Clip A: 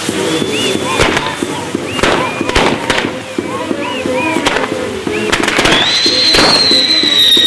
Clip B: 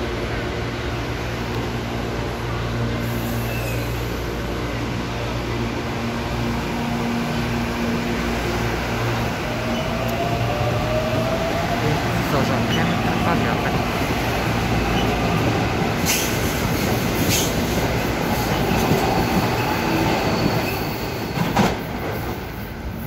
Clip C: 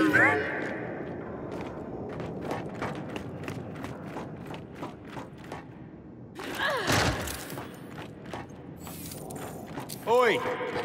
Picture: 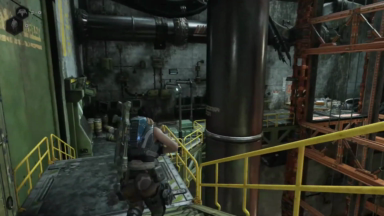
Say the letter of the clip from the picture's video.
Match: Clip C